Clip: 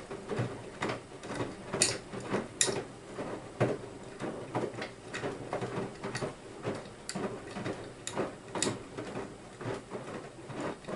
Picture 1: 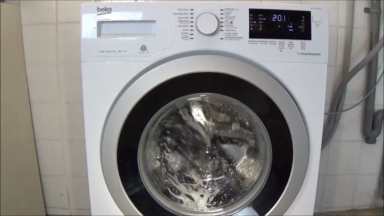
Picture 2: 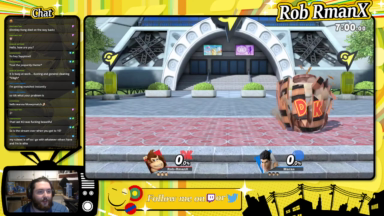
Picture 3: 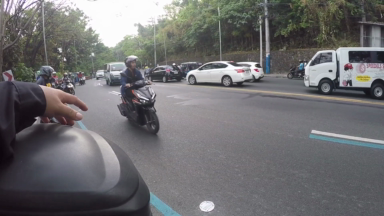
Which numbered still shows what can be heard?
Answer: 1